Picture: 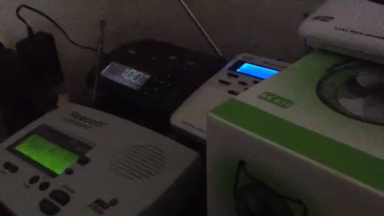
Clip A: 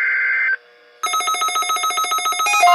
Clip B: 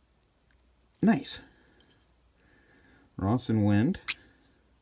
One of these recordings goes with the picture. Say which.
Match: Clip A